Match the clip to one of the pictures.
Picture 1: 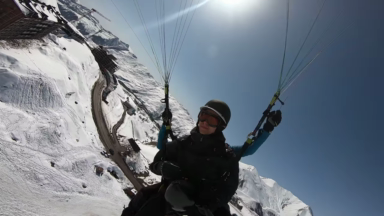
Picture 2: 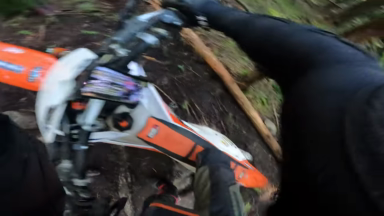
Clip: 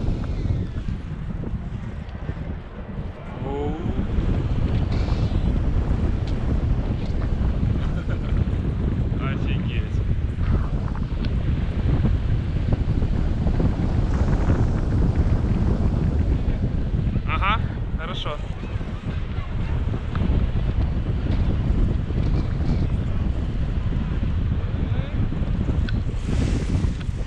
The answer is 1